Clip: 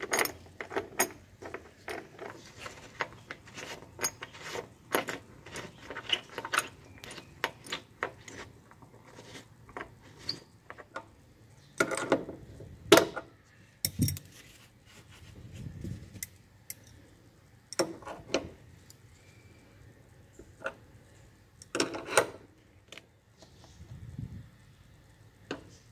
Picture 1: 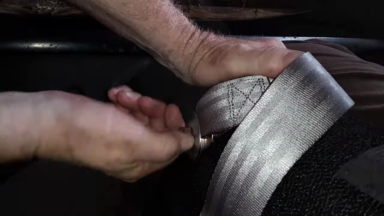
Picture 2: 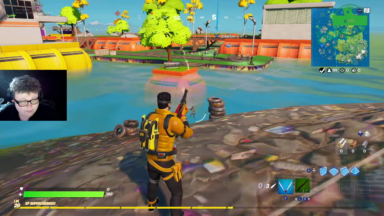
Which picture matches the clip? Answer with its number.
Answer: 1